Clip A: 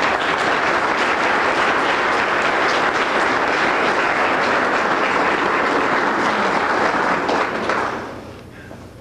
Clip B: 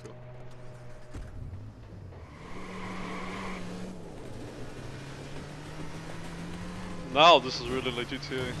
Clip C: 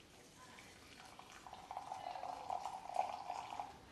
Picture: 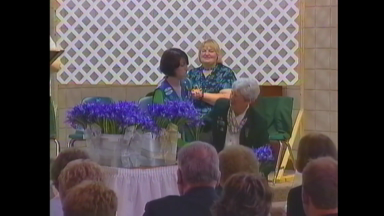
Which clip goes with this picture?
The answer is A